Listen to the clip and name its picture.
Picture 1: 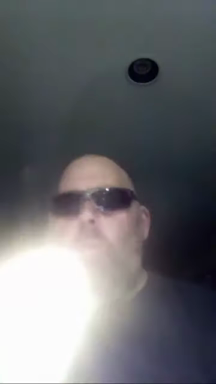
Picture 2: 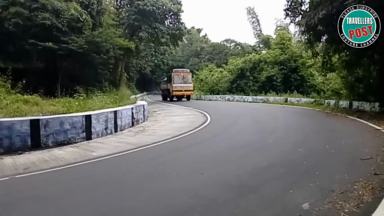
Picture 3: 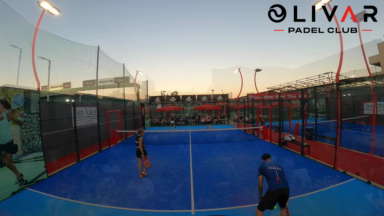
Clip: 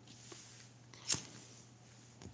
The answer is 1